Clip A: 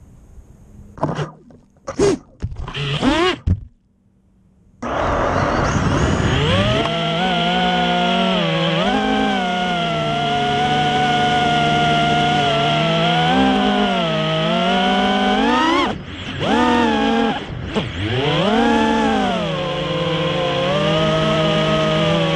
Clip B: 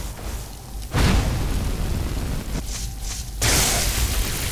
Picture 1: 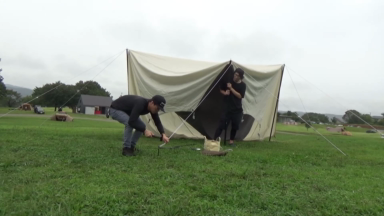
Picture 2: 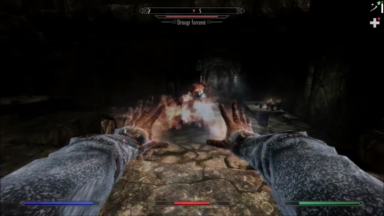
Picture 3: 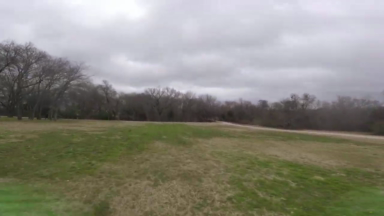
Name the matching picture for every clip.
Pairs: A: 3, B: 2